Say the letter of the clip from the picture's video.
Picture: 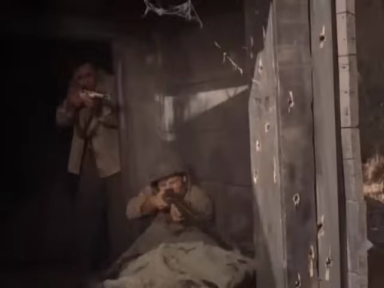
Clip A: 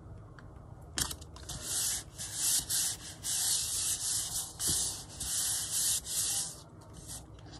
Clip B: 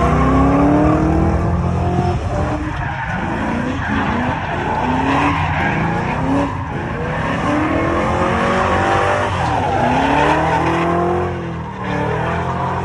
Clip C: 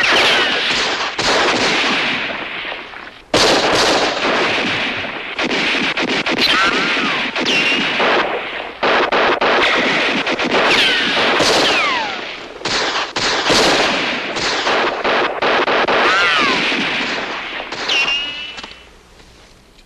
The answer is C